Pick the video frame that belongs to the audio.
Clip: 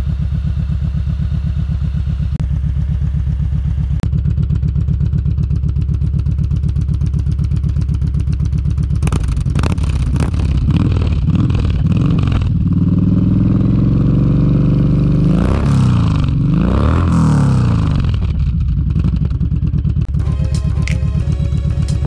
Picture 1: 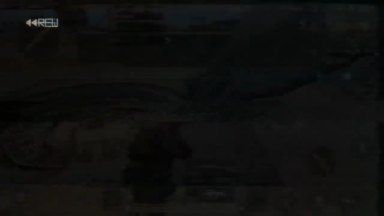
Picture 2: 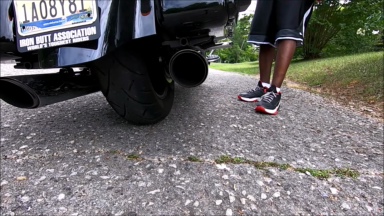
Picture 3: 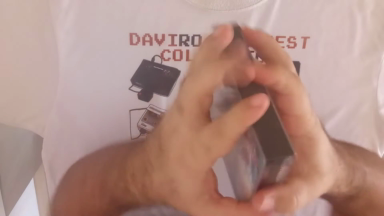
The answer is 2